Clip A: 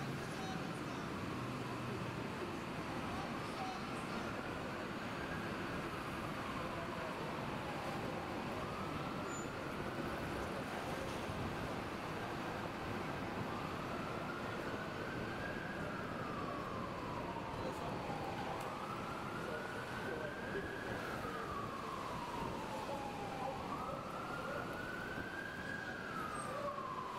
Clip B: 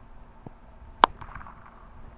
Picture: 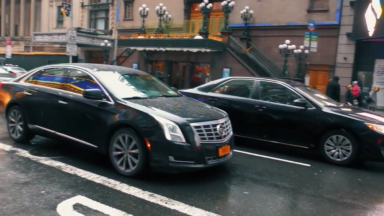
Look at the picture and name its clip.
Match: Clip A